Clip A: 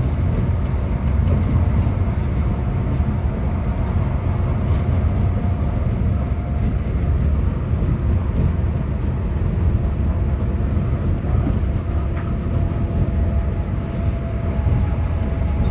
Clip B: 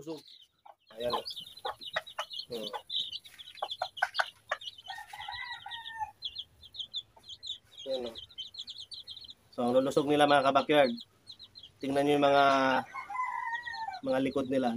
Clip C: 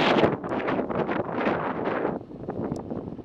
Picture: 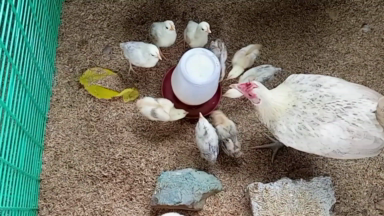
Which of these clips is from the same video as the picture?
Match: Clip B